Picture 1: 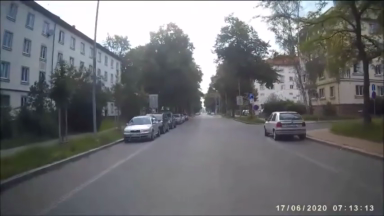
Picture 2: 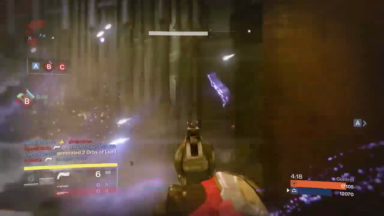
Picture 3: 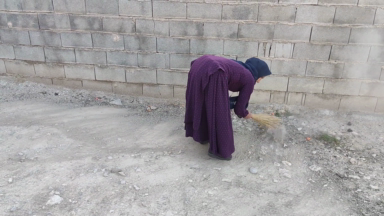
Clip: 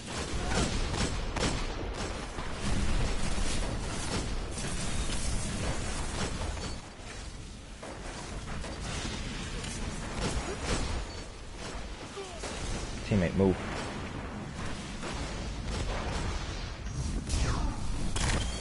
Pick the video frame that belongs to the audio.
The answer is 2